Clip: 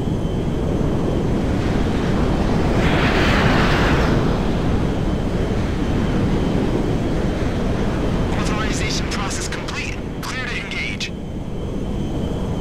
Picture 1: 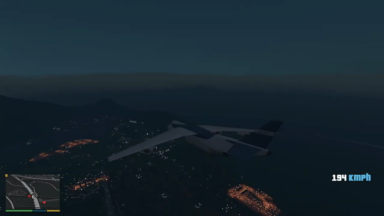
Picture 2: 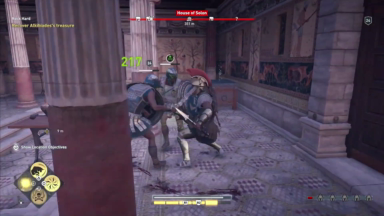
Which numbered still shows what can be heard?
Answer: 1